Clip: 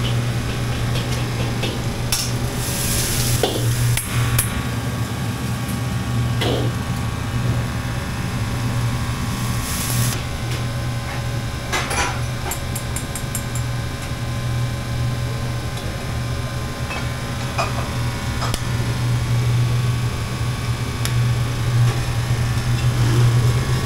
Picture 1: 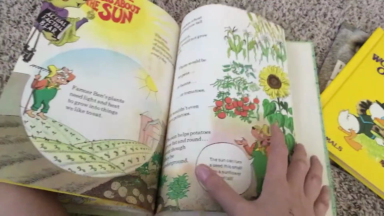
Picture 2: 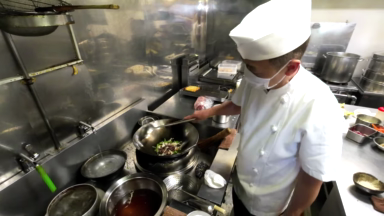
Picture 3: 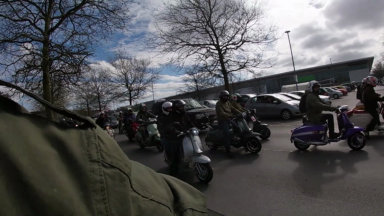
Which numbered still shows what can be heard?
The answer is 2